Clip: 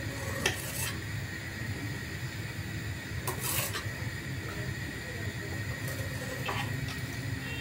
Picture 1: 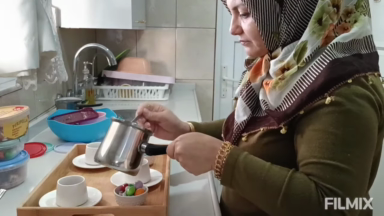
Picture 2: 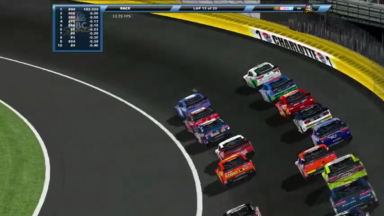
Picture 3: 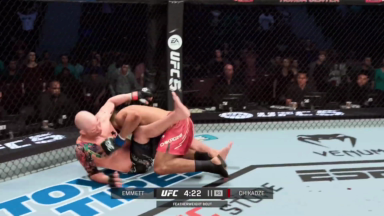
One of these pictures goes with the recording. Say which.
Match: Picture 1